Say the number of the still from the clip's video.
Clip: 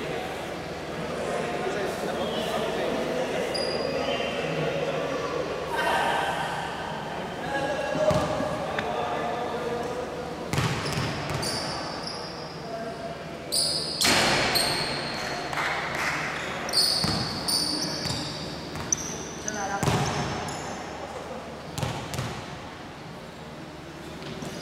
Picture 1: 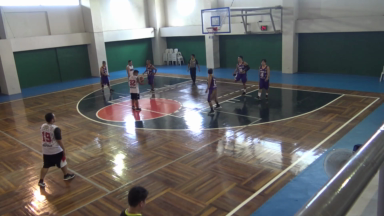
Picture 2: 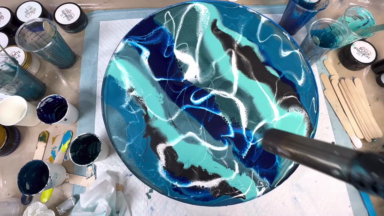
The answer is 1